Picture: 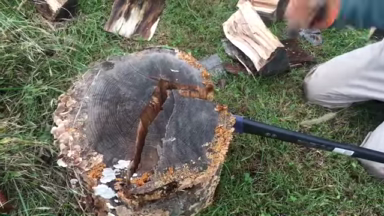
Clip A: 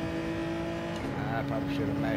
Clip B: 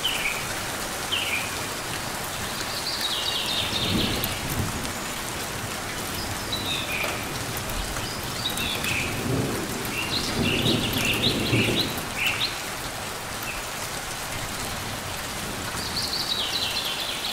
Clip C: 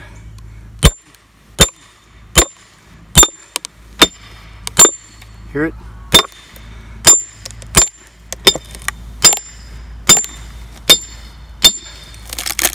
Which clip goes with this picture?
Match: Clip C